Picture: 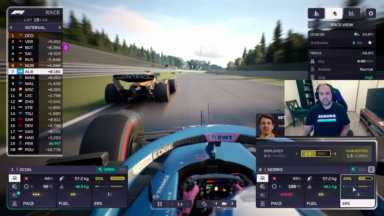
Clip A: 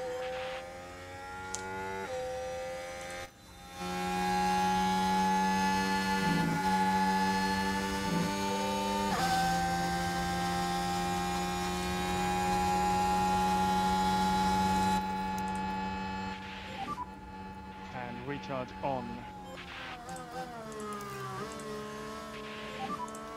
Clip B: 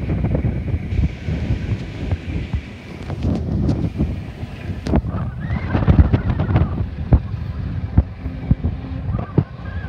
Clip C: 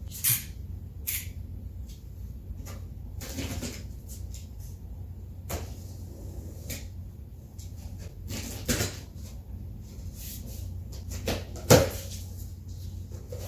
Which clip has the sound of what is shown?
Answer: A